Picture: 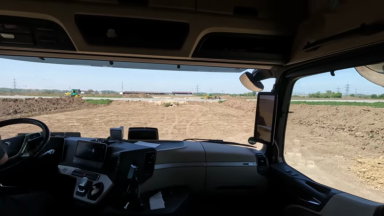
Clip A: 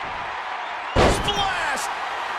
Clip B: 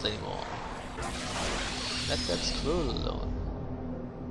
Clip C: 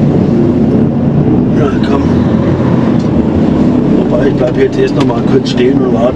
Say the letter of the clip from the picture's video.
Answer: C